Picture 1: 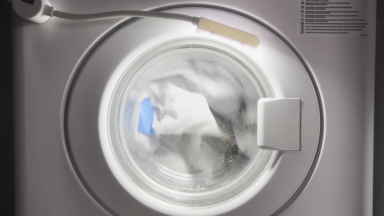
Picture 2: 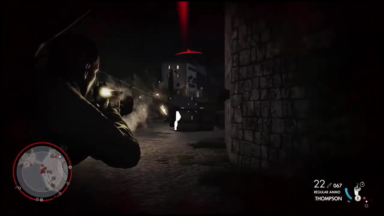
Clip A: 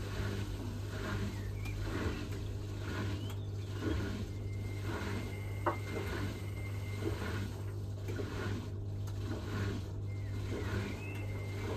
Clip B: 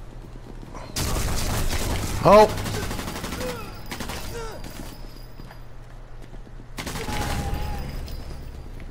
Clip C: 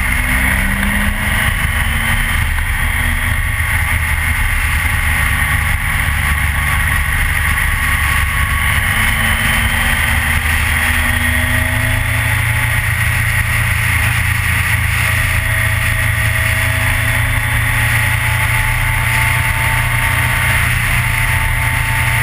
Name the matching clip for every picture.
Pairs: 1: A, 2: B